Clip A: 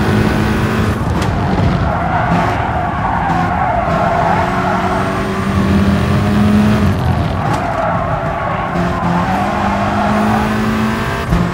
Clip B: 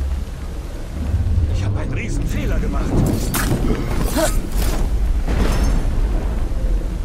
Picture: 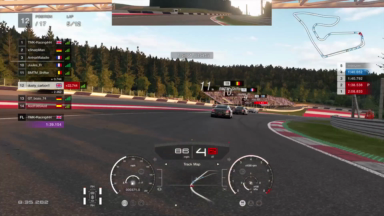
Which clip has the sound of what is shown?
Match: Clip A